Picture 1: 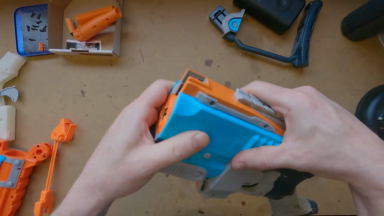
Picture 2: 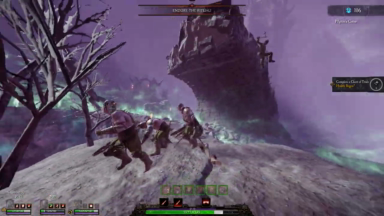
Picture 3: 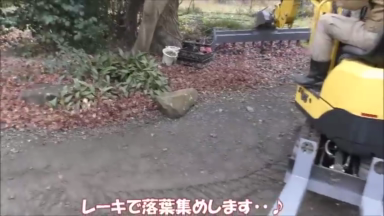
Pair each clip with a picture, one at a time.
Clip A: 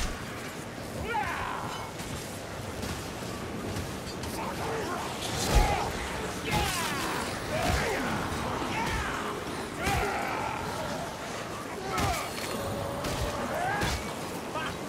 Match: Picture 2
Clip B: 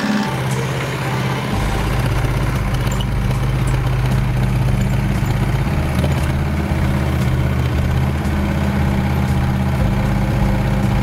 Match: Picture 3